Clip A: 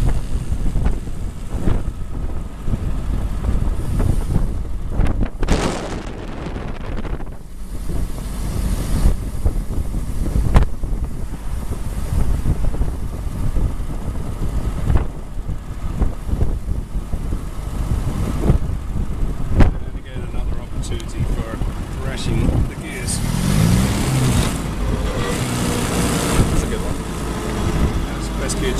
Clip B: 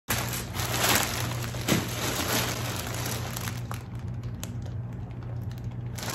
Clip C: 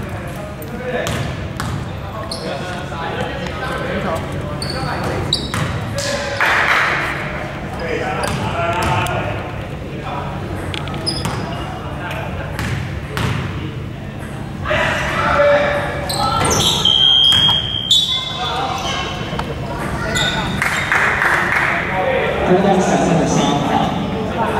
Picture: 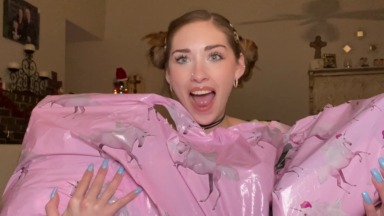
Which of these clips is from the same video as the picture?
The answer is B